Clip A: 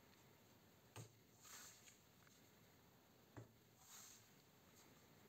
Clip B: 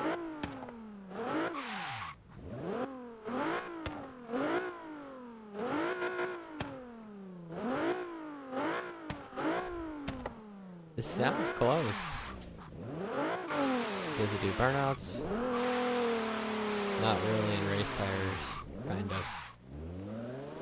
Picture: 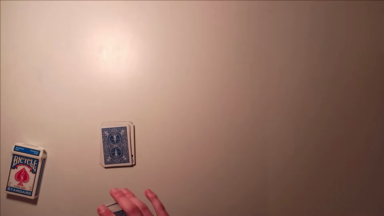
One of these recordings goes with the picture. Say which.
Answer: A